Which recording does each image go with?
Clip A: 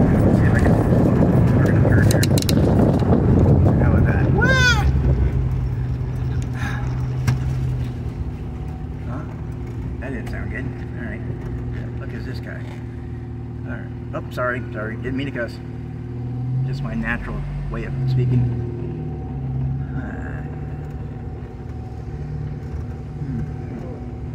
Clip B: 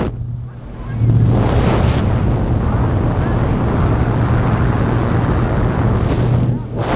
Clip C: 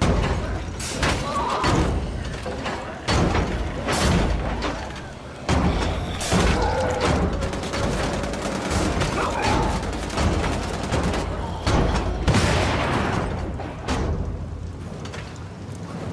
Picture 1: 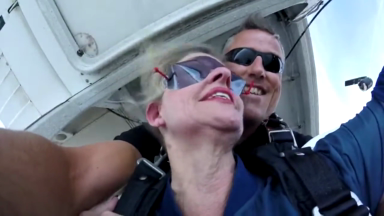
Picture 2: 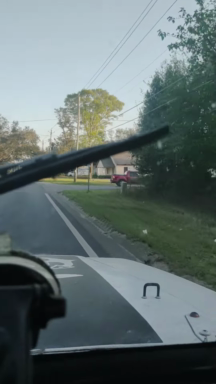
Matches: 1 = B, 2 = A